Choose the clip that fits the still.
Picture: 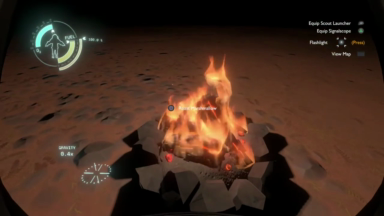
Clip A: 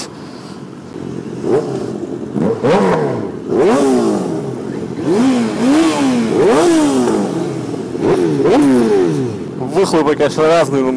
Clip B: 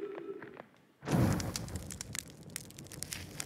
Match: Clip B